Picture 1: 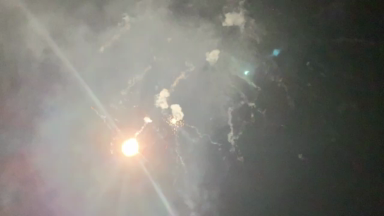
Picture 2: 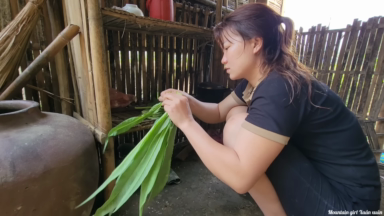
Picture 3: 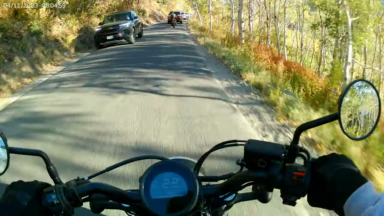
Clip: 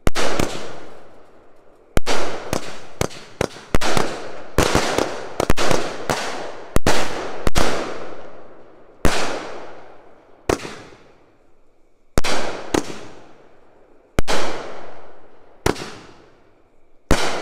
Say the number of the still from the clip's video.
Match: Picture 1